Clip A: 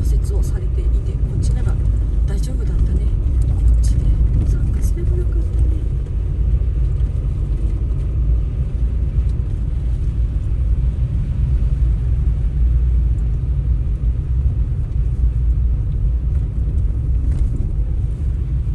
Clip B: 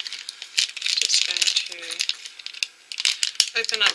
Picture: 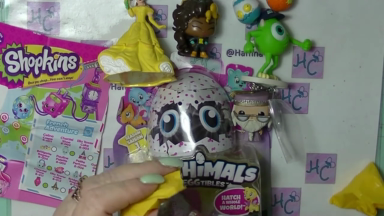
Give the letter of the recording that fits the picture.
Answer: B